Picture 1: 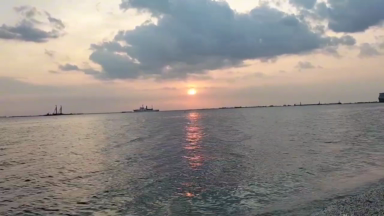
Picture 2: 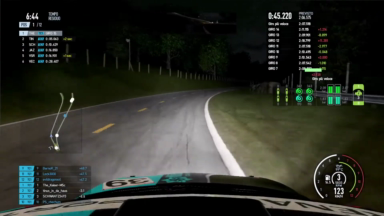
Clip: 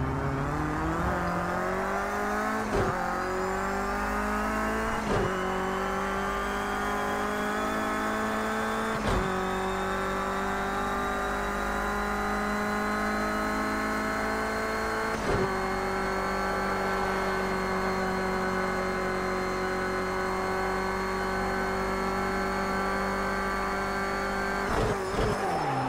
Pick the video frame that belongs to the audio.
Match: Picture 2